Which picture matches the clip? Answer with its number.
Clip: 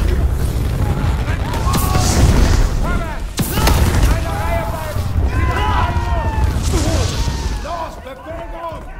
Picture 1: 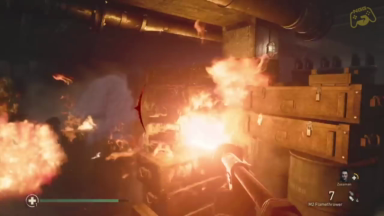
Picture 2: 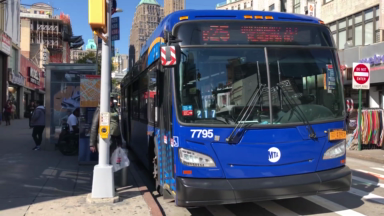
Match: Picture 1